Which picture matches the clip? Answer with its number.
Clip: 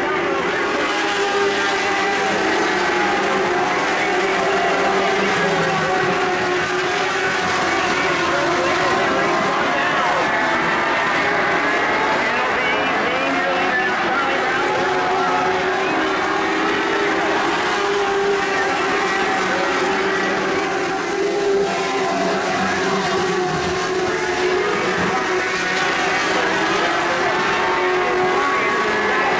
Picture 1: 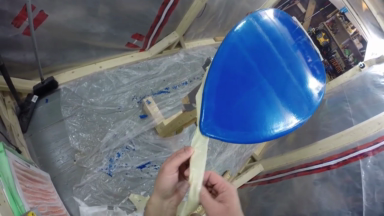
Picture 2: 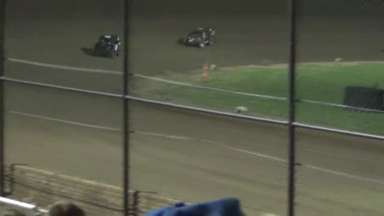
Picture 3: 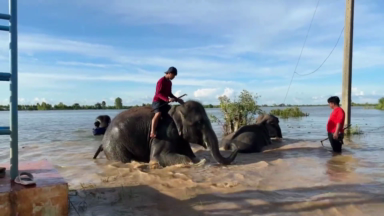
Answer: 2